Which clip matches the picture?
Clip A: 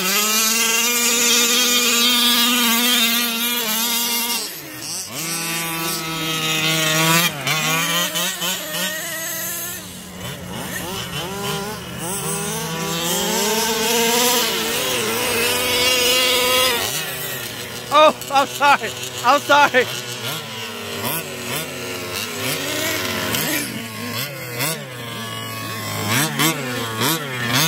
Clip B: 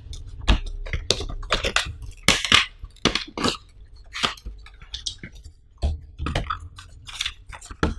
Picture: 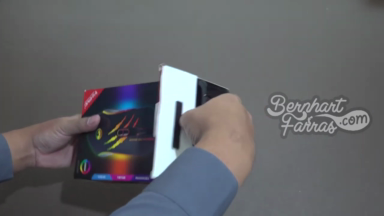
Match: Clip B